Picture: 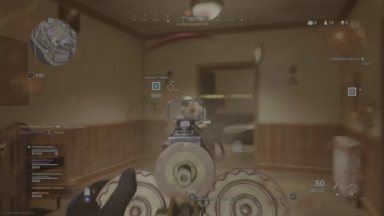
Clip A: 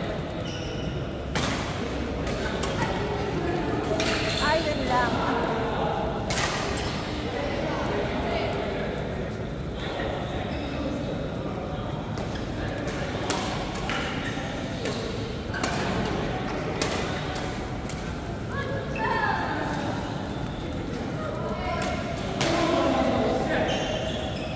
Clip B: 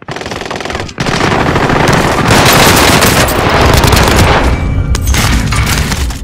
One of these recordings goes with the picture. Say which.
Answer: B